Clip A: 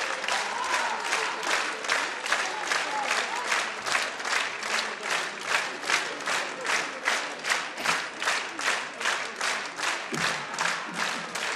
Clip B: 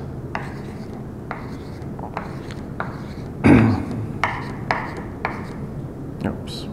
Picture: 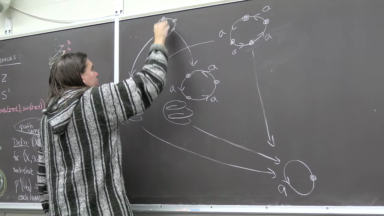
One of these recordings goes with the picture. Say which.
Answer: B